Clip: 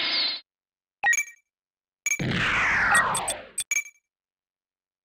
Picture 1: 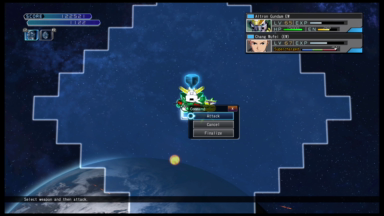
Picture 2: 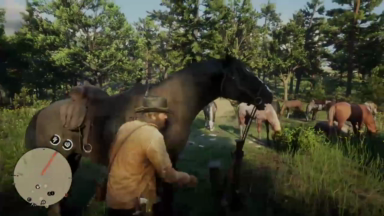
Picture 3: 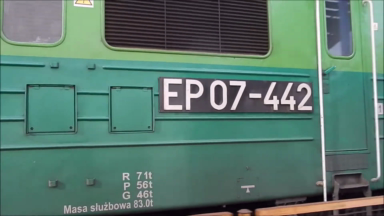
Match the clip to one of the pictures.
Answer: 1